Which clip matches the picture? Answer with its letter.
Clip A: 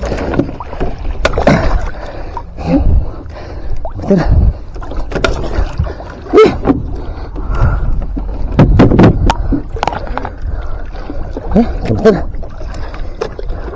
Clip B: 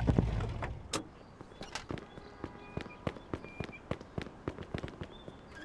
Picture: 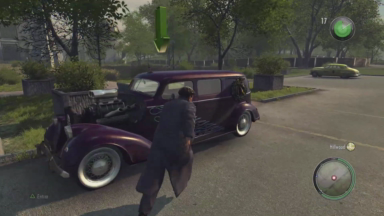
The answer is B